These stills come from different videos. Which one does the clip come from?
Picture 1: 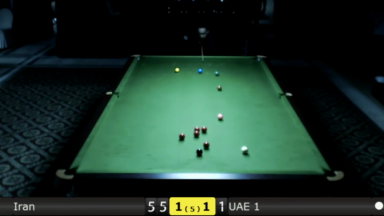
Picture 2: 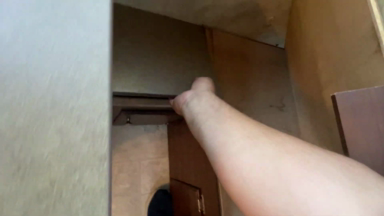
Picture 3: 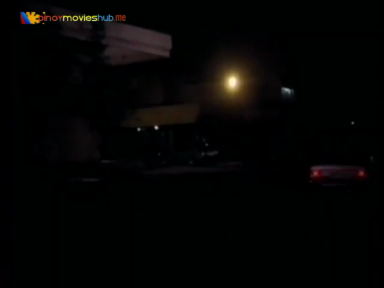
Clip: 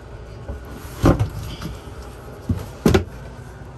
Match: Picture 2